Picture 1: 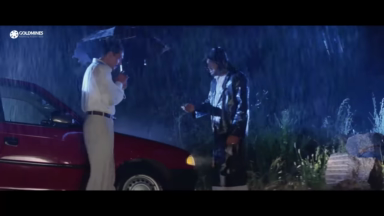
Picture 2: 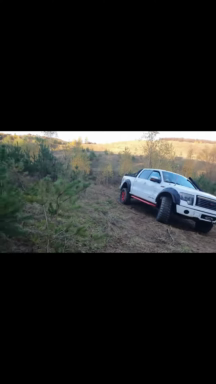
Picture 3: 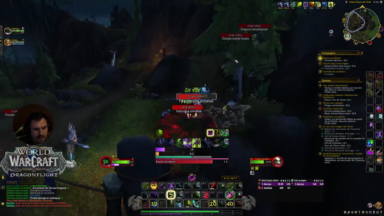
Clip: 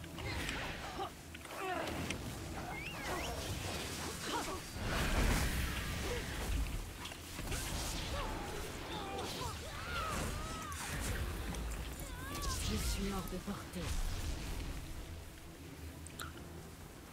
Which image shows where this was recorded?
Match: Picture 3